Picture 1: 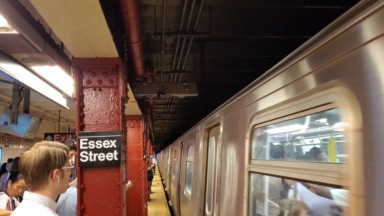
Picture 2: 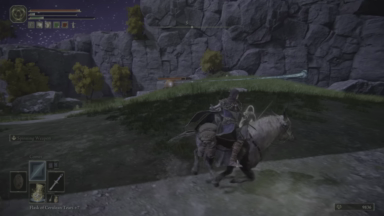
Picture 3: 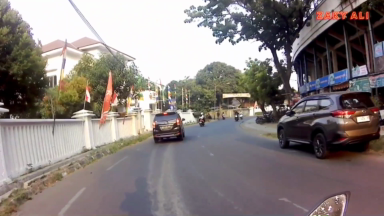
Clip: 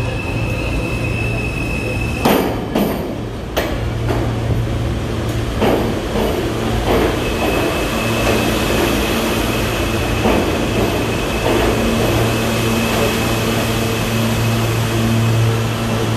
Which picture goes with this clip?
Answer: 1